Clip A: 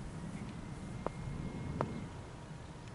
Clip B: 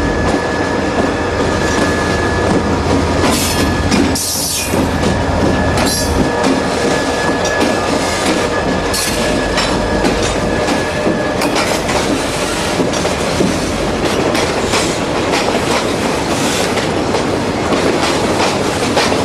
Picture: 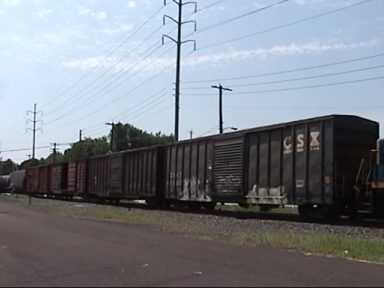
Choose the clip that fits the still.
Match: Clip B